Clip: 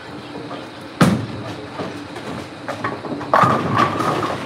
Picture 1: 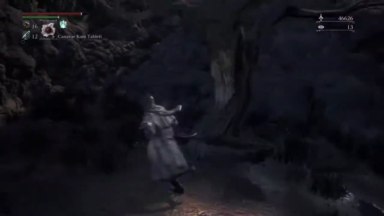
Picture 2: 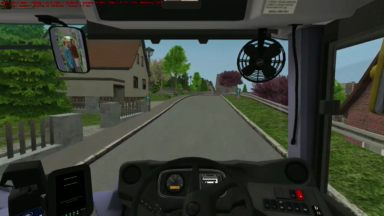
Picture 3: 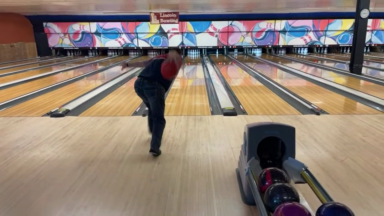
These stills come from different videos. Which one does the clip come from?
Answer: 3